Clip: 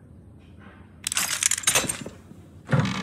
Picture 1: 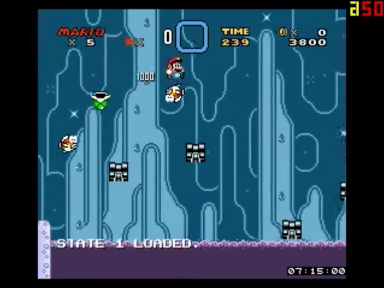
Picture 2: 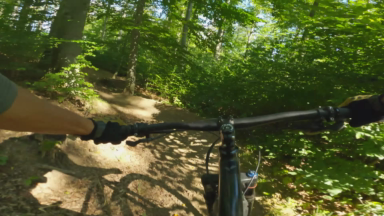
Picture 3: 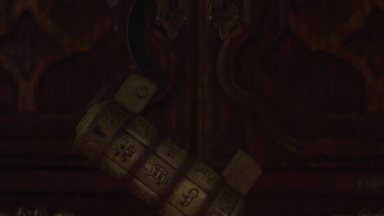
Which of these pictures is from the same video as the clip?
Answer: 3